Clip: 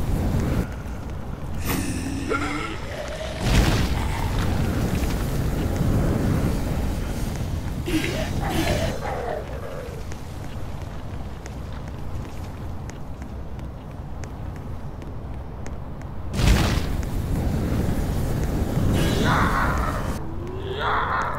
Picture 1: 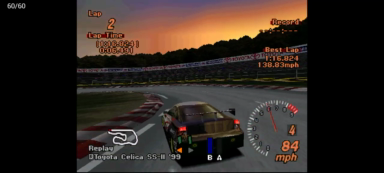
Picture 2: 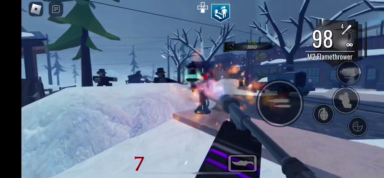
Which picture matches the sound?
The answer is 2